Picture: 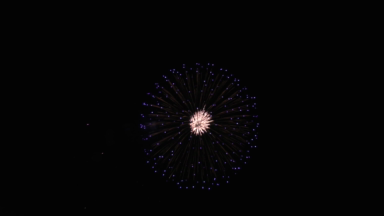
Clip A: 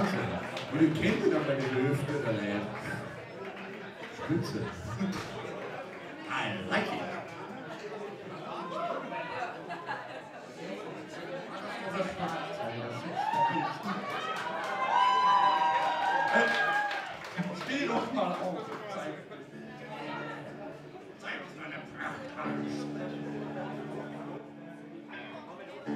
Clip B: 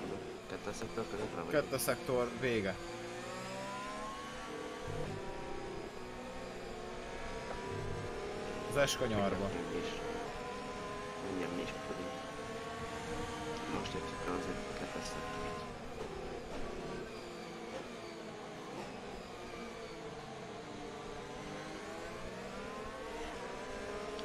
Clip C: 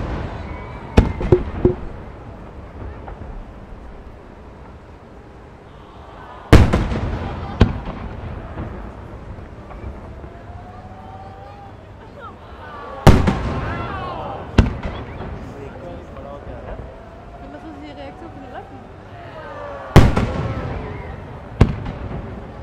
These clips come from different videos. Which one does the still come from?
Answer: C